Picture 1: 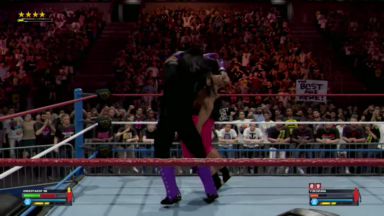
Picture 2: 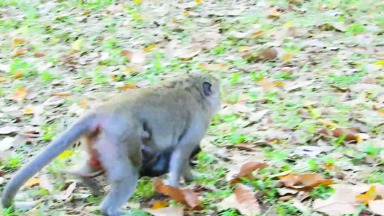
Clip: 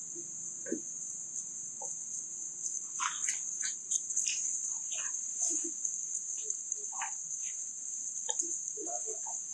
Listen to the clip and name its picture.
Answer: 2